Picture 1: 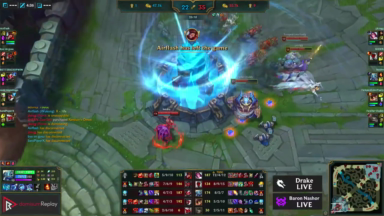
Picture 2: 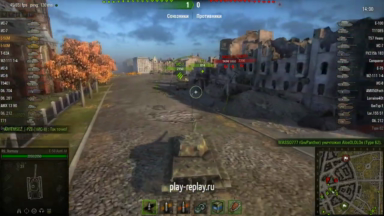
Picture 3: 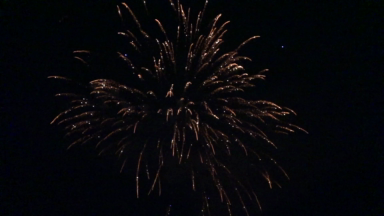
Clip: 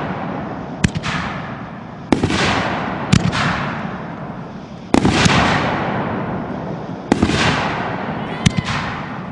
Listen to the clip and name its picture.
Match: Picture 3